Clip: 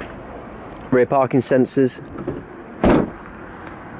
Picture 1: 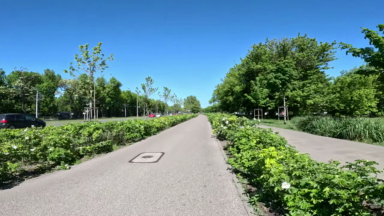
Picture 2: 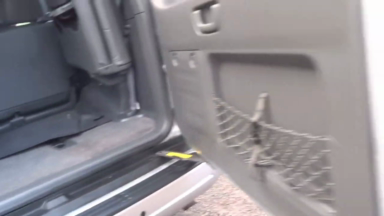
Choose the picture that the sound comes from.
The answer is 2